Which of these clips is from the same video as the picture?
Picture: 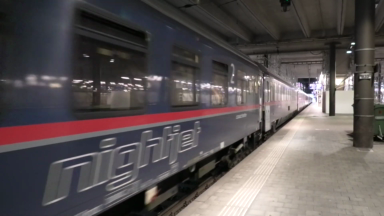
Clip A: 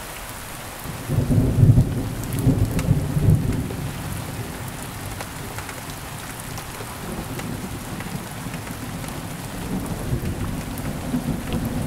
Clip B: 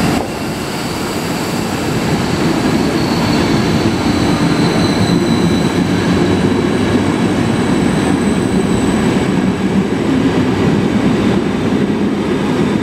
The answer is B